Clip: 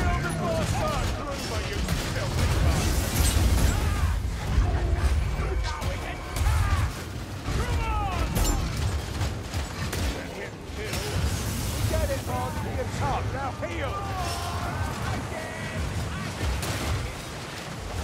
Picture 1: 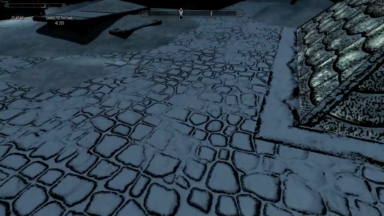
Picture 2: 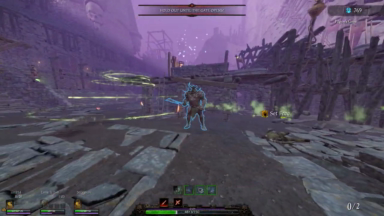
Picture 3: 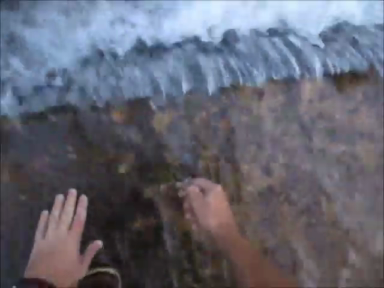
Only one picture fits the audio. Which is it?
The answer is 2